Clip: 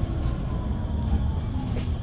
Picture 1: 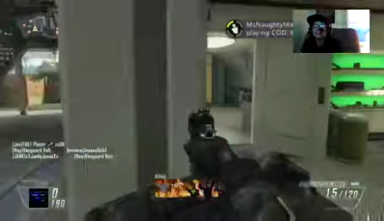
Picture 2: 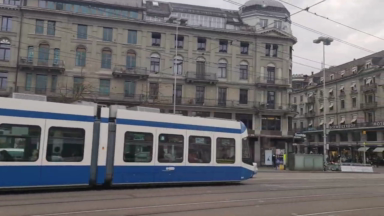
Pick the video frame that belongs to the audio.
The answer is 2